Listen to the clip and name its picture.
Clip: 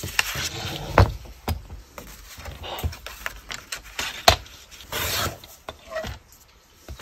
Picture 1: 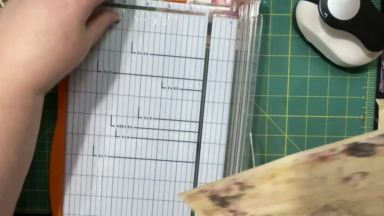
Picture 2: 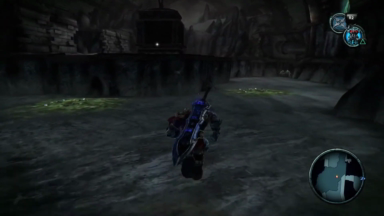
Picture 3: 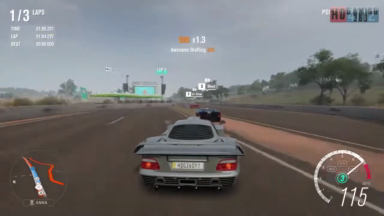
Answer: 1